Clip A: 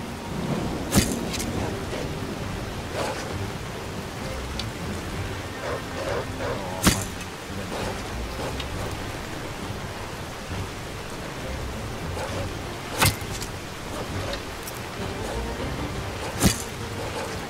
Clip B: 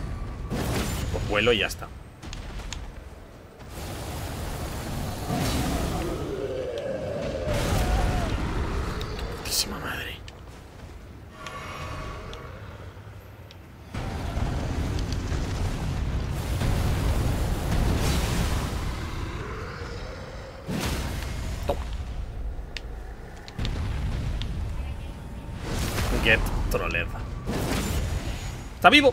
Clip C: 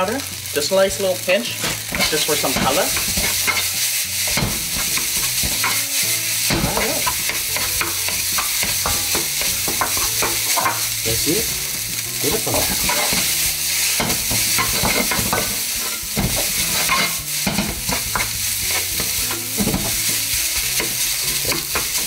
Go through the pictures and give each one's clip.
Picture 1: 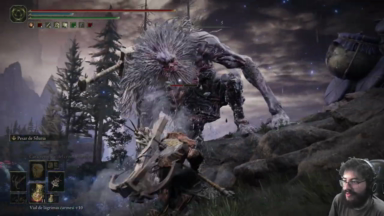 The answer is B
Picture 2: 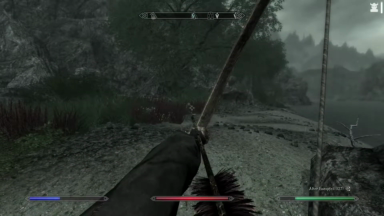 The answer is A